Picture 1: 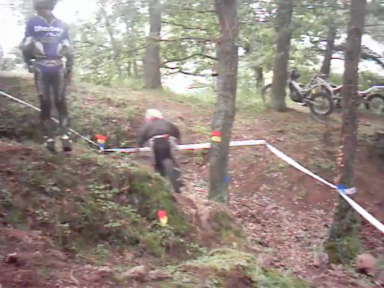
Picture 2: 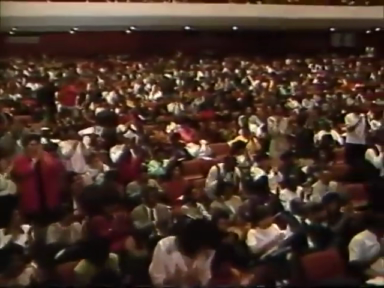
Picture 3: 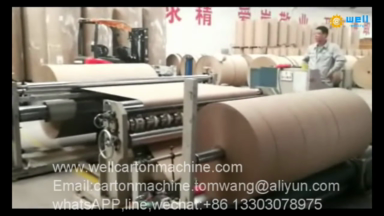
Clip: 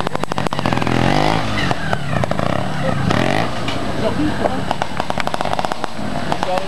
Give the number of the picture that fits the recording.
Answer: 1